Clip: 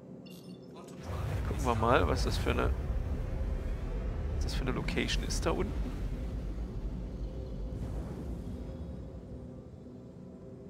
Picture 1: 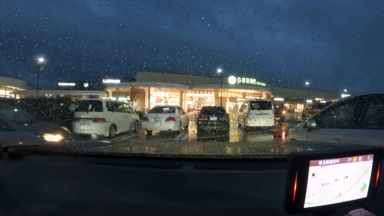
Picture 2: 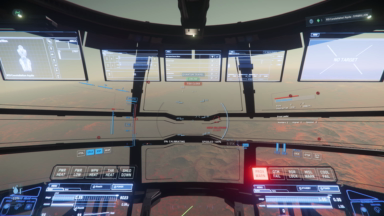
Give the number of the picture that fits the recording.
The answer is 2